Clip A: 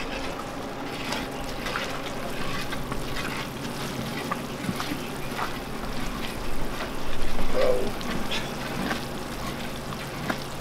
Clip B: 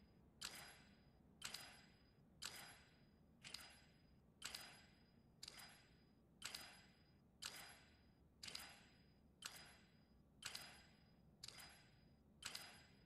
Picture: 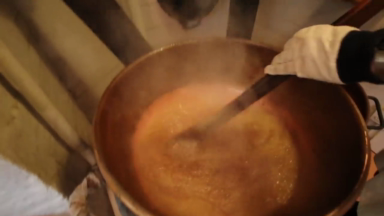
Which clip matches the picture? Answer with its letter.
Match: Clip A